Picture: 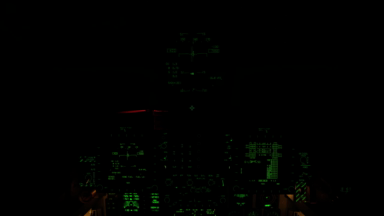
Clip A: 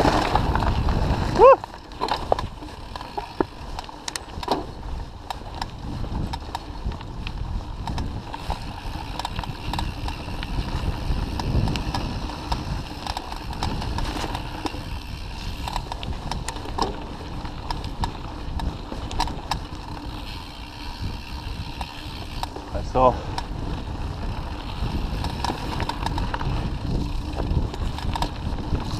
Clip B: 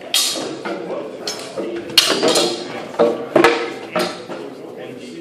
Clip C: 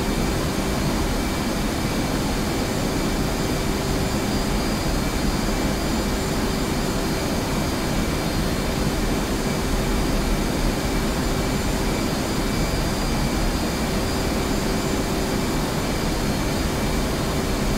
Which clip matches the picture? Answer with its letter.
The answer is C